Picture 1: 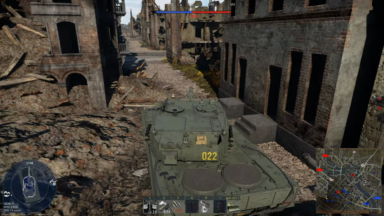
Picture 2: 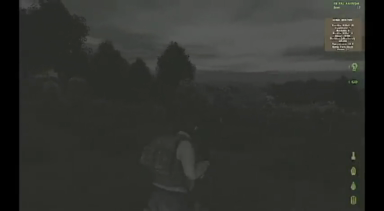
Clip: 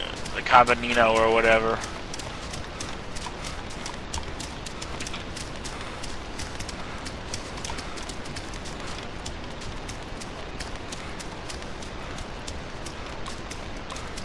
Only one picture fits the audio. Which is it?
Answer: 2